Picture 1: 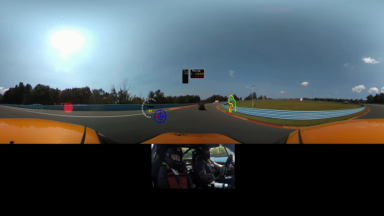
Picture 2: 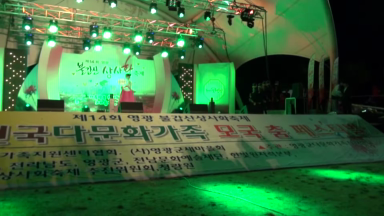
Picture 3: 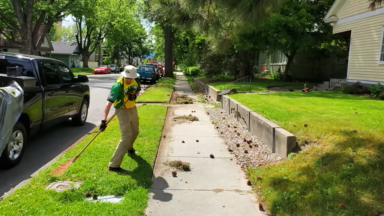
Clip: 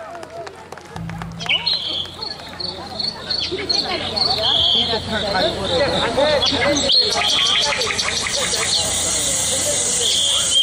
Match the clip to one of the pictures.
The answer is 2